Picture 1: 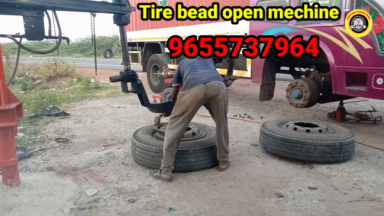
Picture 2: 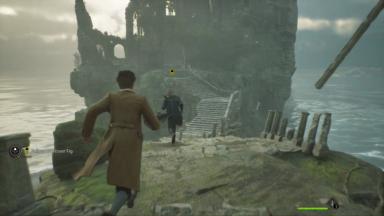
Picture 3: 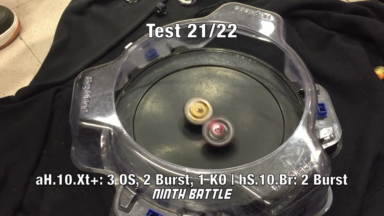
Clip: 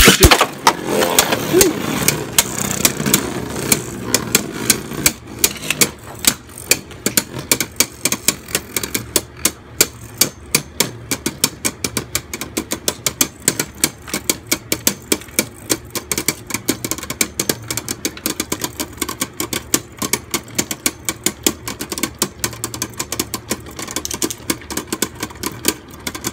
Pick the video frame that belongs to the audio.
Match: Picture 3